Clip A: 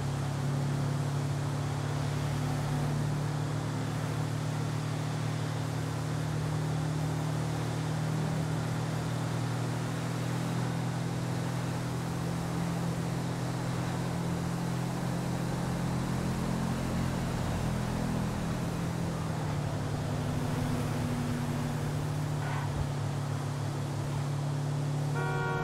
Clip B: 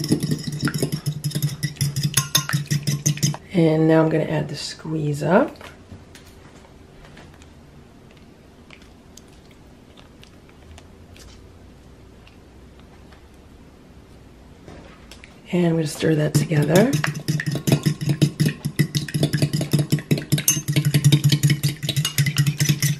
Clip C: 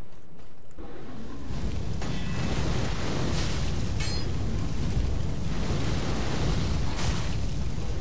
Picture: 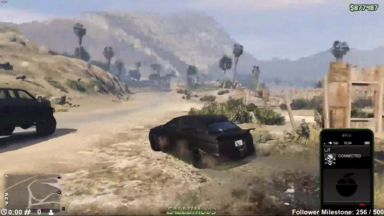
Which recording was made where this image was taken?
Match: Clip A